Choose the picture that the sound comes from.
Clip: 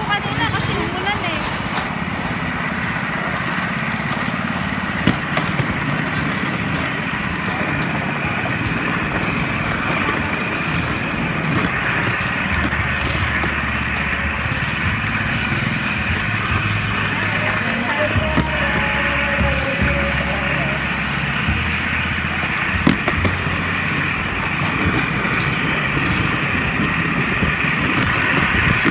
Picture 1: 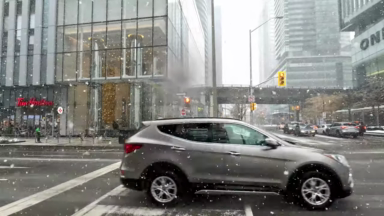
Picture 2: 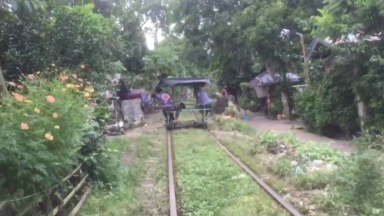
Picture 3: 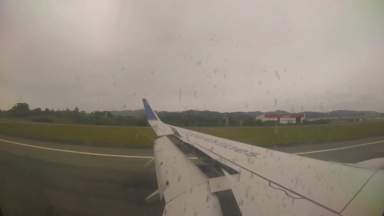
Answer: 2